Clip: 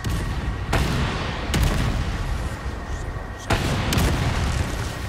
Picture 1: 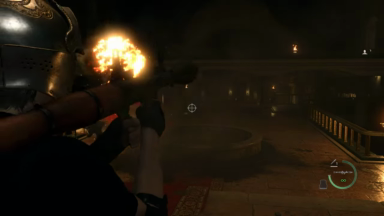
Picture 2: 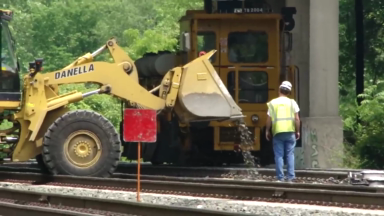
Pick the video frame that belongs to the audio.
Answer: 1